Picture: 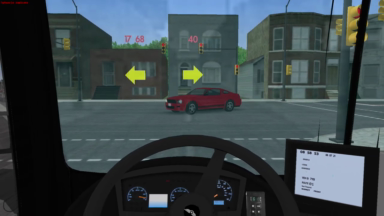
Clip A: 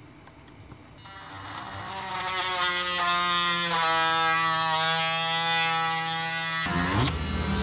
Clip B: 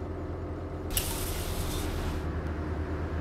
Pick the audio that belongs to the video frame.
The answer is B